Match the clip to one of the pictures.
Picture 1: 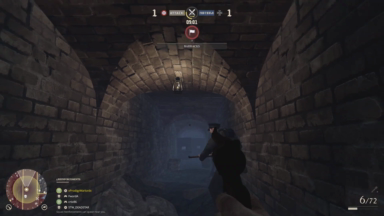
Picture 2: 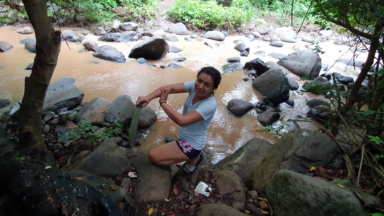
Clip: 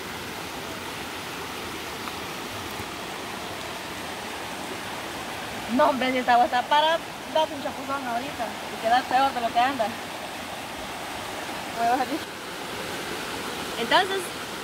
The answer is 2